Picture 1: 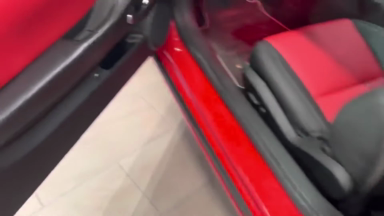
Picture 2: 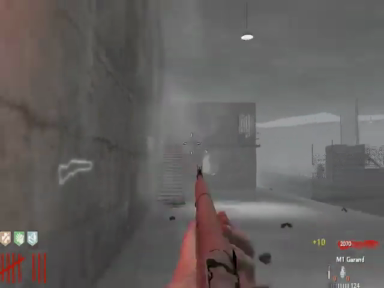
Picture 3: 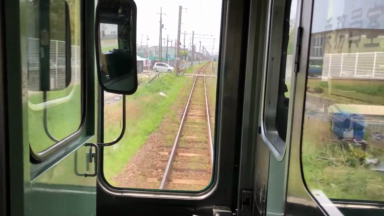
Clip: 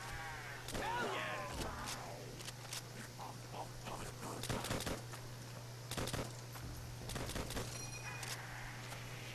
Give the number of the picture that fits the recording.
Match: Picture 2